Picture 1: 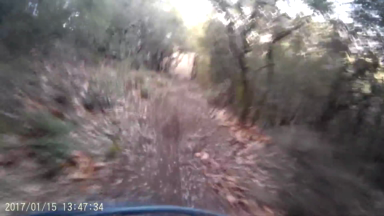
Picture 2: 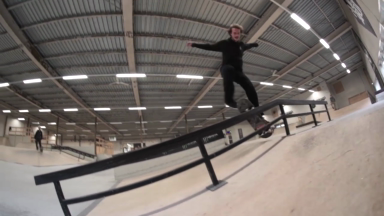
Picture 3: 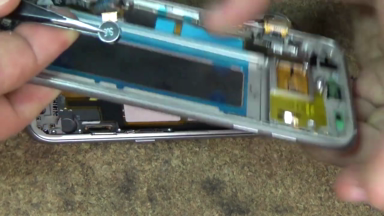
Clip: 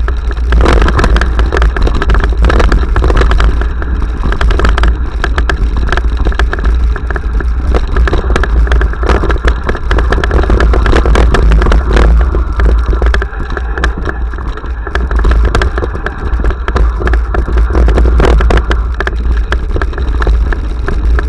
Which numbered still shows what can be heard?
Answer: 1